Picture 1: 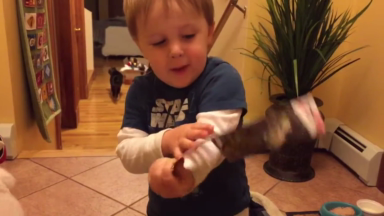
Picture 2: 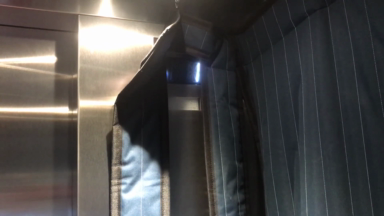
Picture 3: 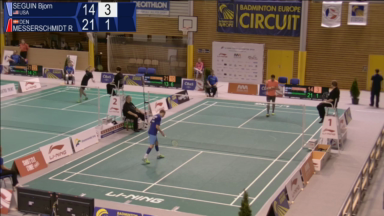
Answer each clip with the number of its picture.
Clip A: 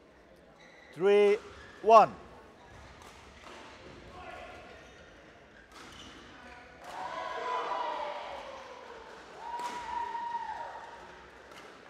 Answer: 3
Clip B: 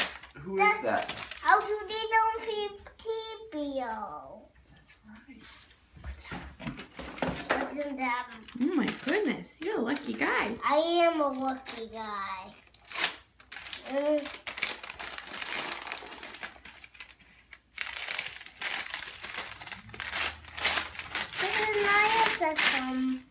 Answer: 1